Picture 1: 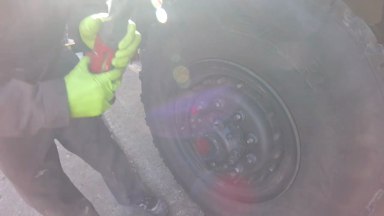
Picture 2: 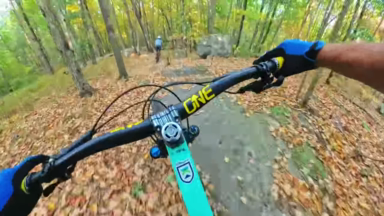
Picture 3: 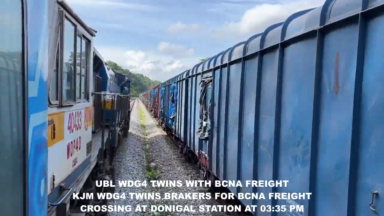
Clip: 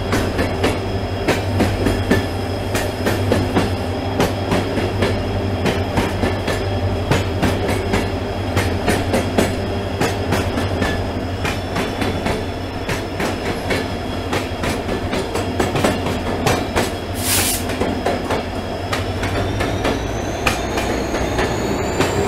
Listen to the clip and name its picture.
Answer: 3